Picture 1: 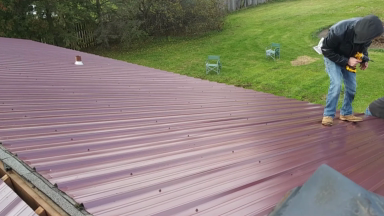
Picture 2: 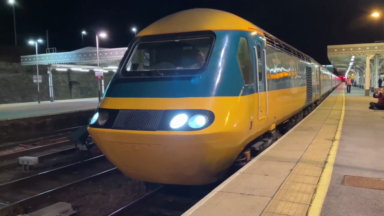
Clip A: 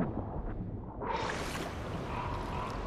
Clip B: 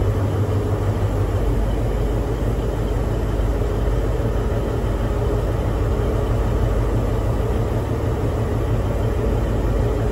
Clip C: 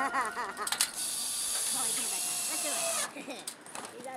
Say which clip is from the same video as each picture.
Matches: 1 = C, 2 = B